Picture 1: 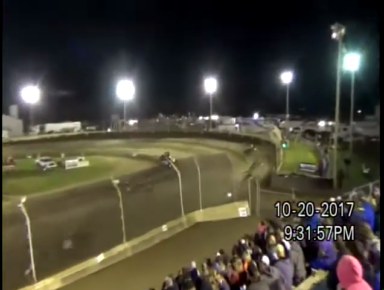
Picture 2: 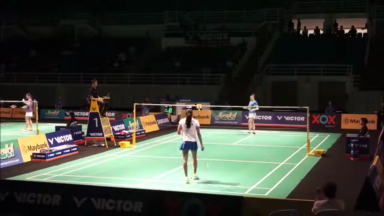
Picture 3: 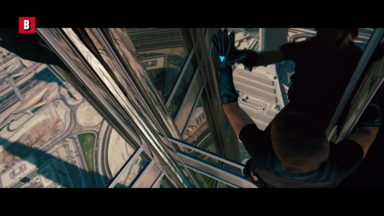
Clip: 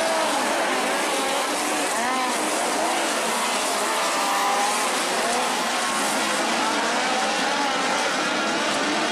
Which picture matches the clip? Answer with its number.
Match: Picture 1